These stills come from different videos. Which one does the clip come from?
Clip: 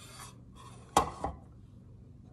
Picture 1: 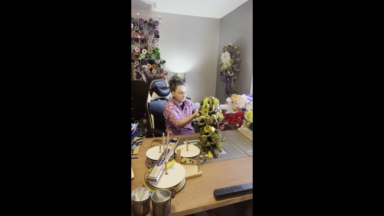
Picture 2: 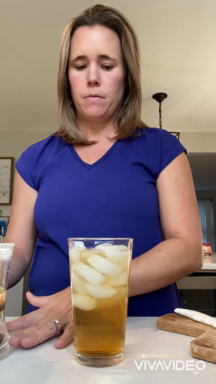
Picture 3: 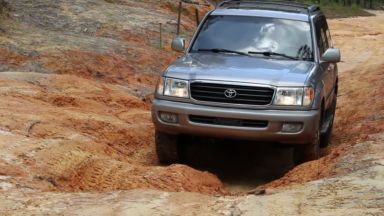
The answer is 2